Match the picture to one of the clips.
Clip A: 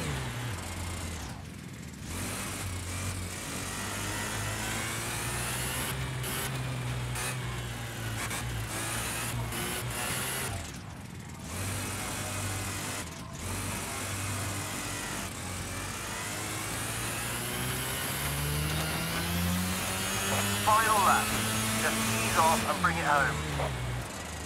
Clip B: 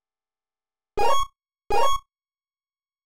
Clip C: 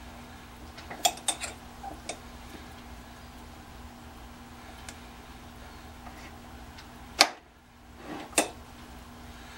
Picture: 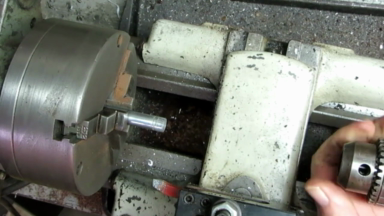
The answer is C